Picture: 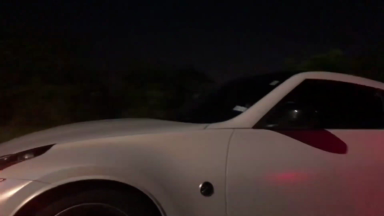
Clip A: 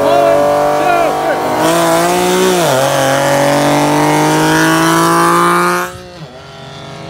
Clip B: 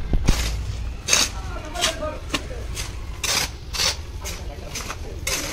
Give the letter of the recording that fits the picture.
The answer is A